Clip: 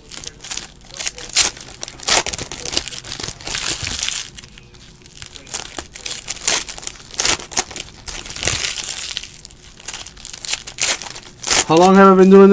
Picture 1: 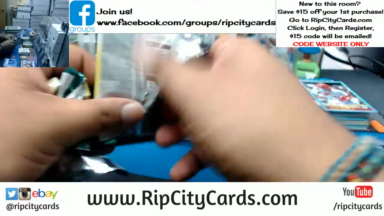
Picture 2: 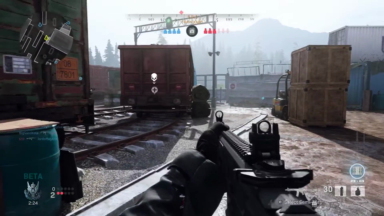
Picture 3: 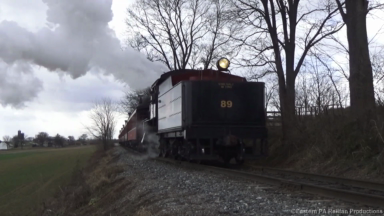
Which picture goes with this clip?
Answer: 1